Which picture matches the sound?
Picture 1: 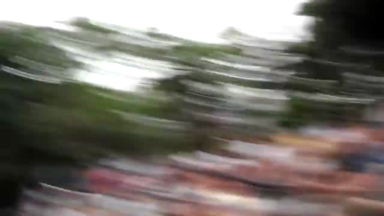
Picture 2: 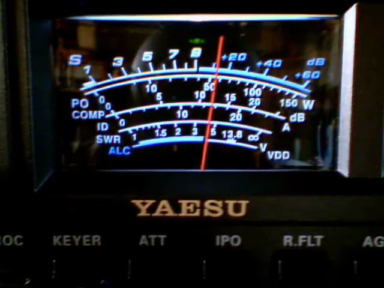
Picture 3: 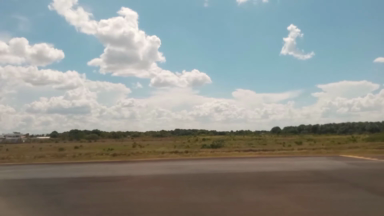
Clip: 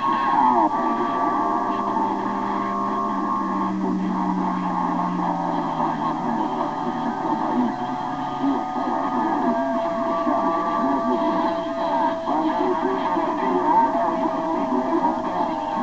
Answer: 2